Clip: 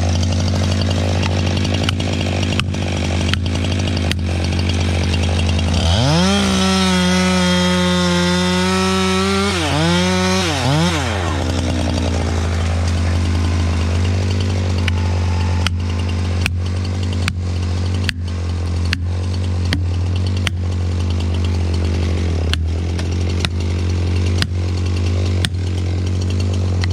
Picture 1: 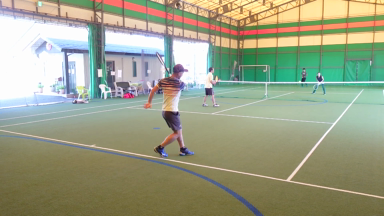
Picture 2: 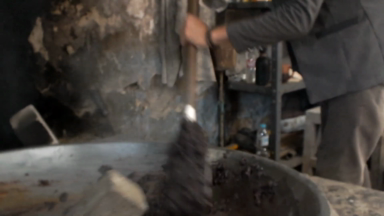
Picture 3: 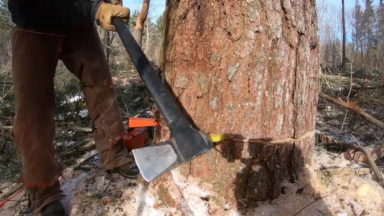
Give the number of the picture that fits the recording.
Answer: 3